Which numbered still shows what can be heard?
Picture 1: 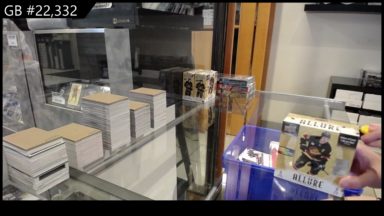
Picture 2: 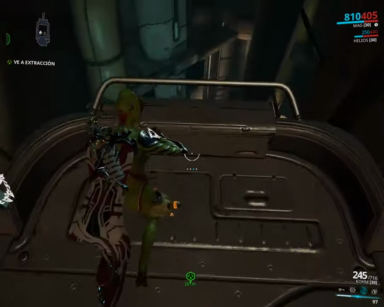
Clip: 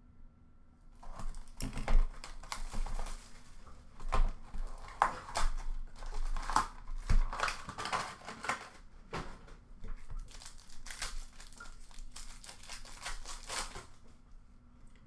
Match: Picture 1